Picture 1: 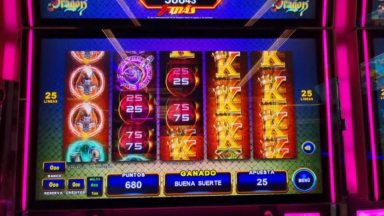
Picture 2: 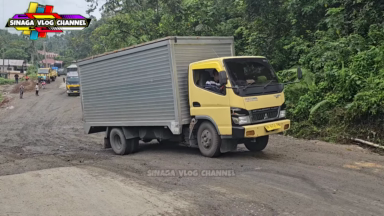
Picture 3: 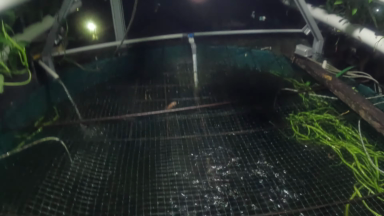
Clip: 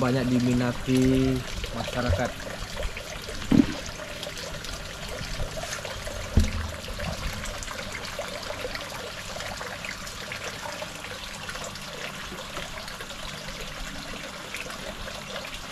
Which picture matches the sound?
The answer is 3